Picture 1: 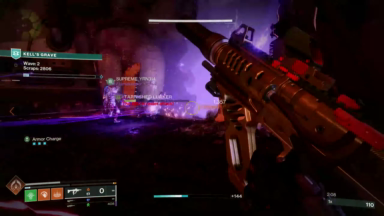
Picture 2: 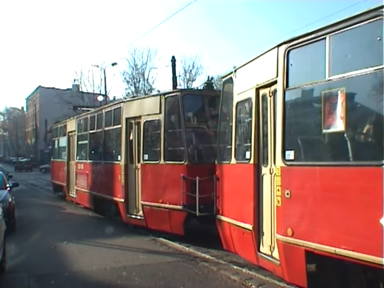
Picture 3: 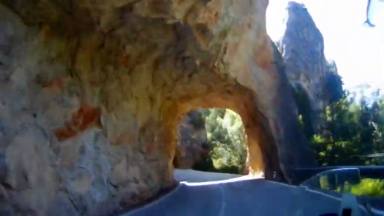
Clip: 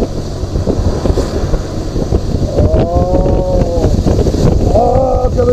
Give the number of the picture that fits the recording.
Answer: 3